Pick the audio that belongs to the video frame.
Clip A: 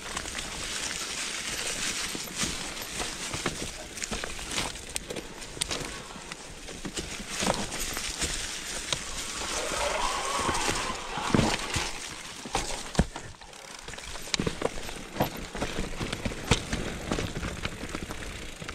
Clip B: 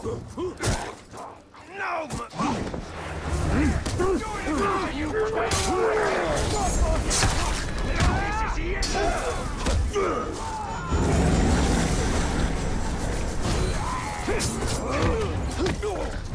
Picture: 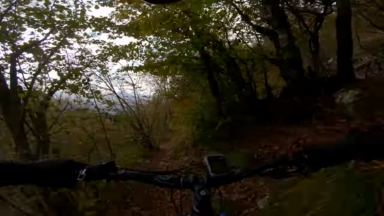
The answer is A